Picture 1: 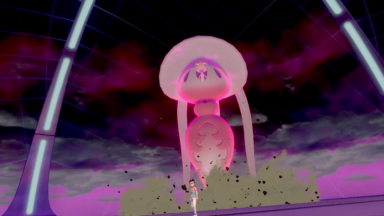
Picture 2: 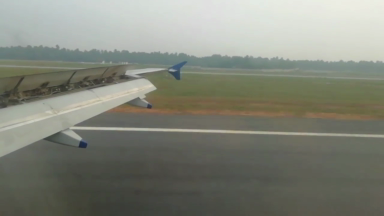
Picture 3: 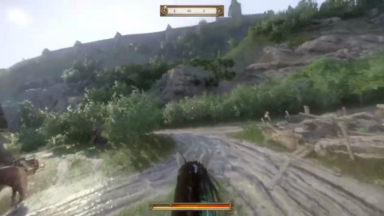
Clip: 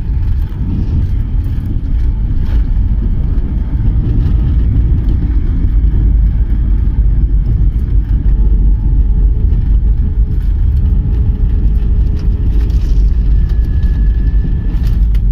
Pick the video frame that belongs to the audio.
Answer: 2